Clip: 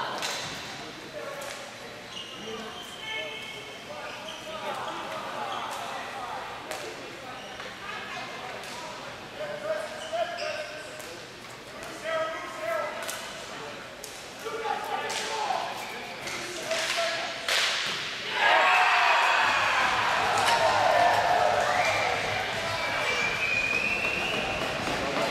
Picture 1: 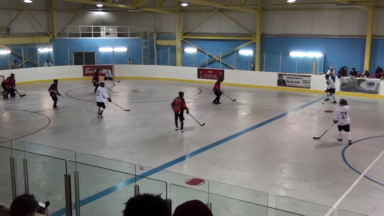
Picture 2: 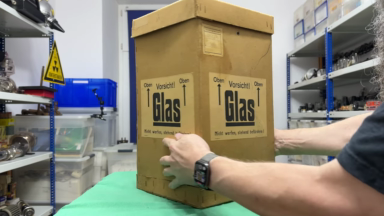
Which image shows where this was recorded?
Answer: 1